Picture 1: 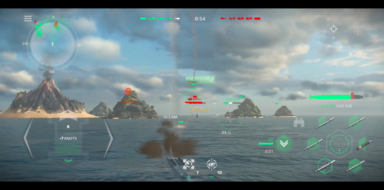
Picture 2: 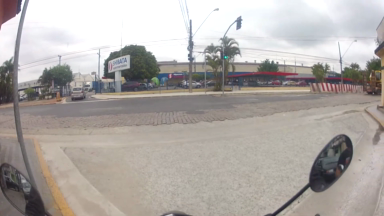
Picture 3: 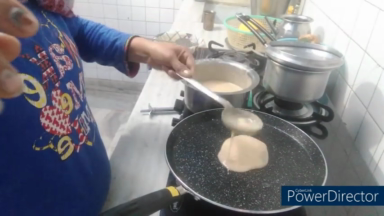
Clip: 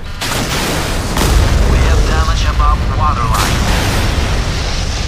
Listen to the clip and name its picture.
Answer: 1